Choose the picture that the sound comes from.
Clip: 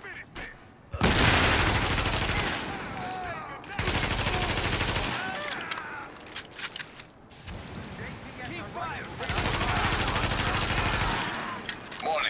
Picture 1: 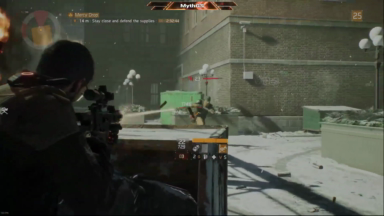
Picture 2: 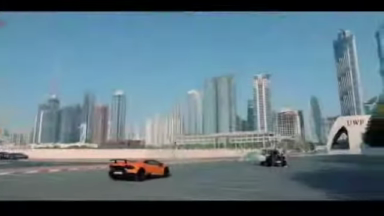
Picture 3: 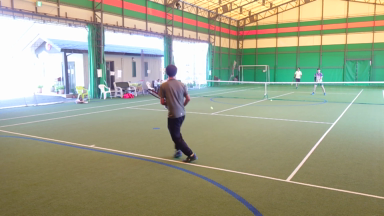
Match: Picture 1